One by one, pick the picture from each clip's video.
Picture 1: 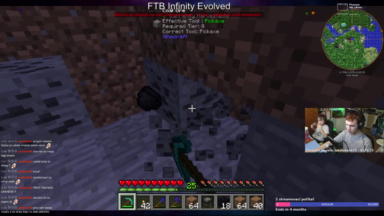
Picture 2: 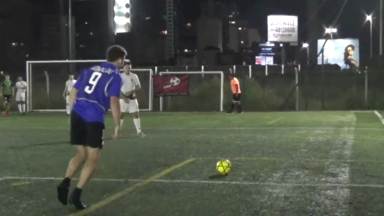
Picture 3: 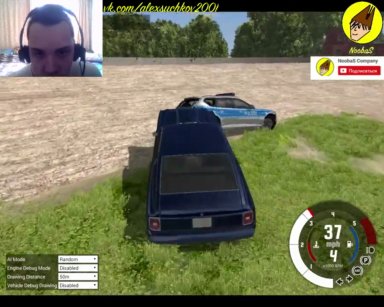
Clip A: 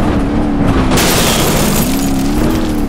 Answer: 3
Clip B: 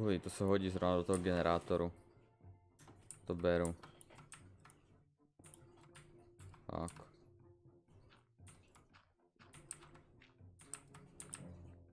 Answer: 1